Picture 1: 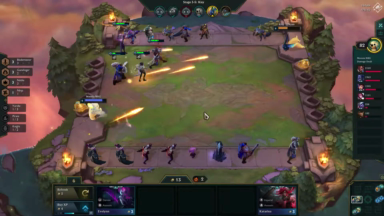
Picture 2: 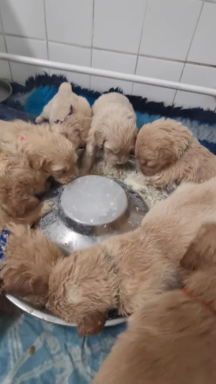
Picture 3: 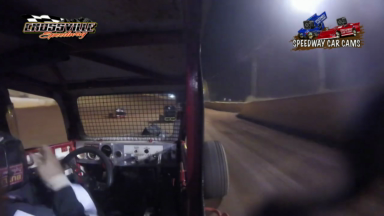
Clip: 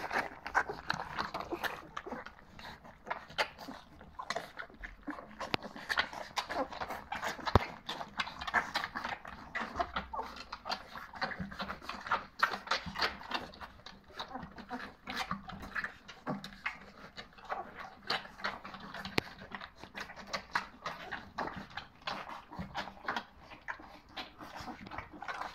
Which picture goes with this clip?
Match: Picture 2